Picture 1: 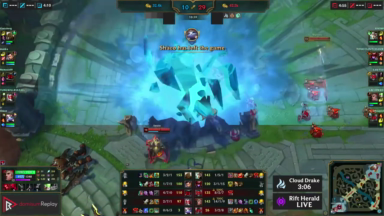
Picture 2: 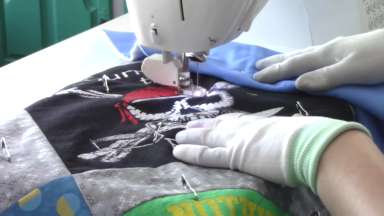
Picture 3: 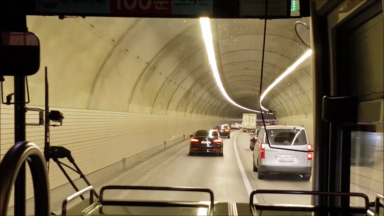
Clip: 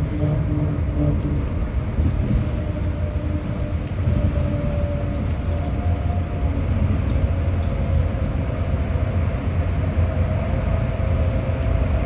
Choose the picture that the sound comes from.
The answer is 3